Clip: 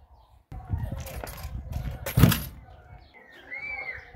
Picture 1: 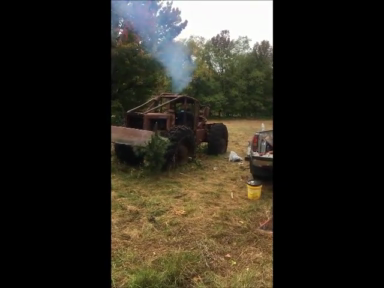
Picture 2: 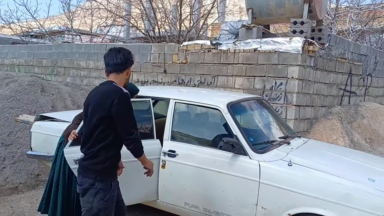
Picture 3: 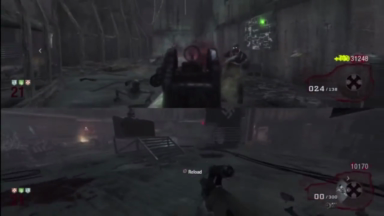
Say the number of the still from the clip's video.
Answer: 2